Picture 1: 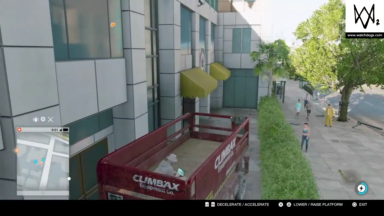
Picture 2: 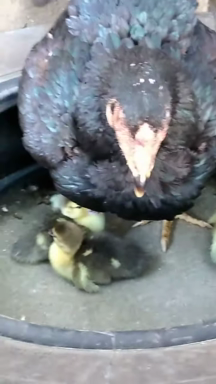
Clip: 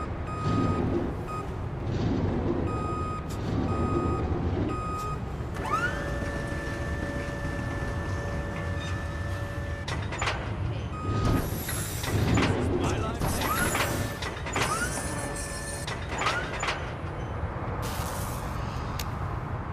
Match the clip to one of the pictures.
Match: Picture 1